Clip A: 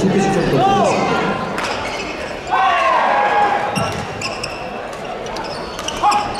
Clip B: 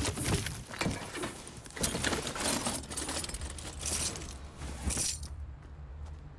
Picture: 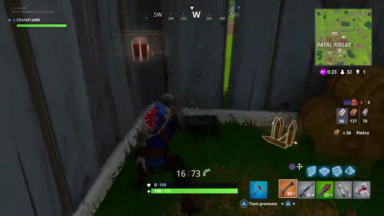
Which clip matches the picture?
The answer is B